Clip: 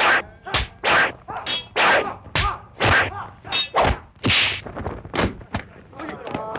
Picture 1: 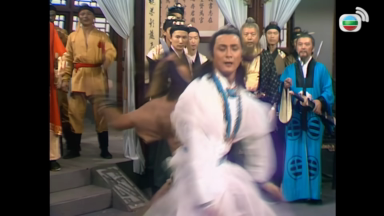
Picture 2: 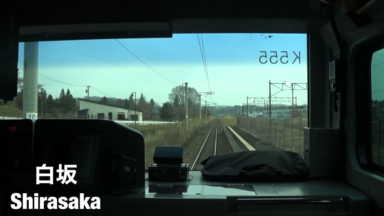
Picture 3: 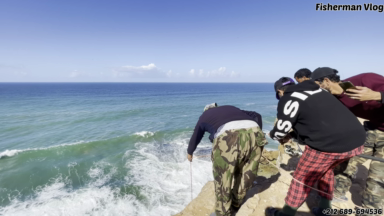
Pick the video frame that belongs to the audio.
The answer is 1